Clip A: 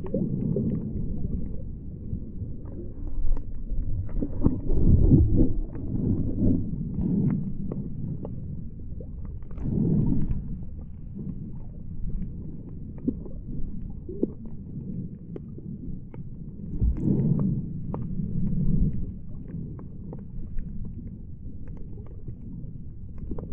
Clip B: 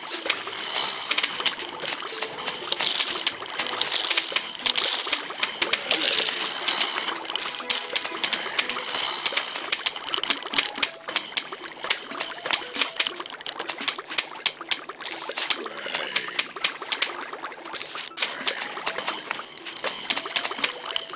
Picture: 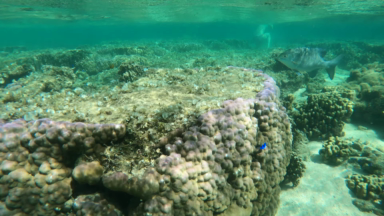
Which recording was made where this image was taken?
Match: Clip A